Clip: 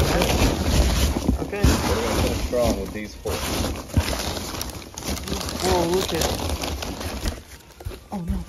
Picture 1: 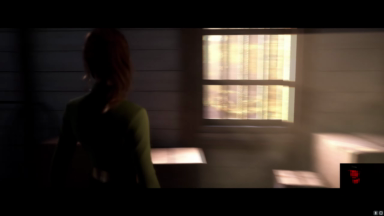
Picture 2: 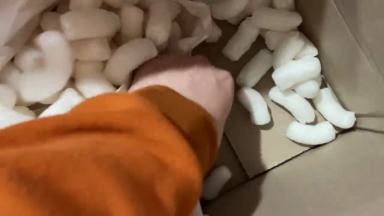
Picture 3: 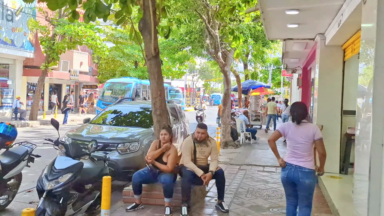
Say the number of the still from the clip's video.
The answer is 2